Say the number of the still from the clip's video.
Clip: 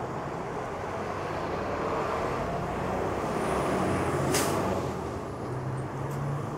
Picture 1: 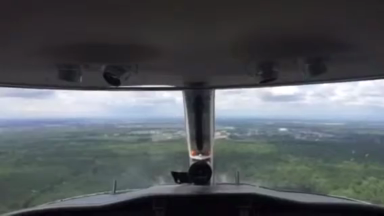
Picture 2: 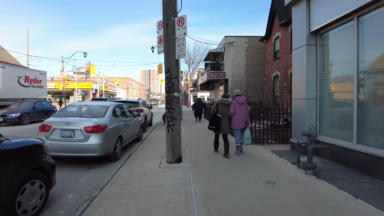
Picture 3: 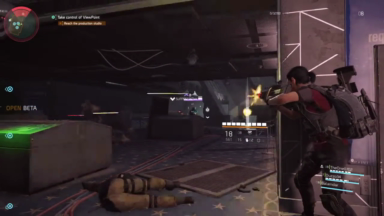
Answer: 2